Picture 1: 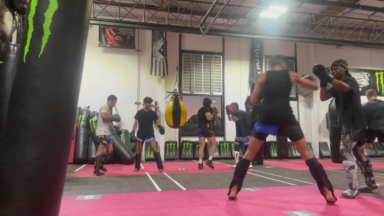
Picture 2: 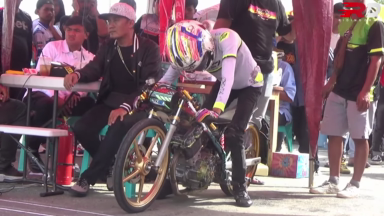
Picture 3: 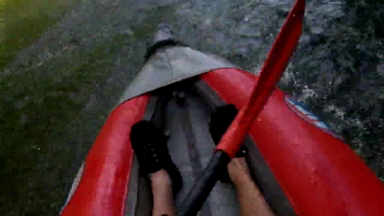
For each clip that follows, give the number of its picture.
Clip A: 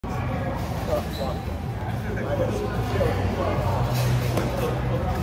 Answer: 1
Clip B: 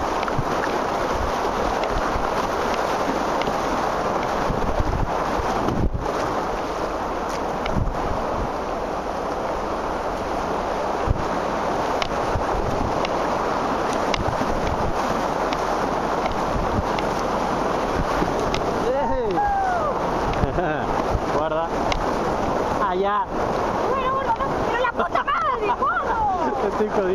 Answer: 3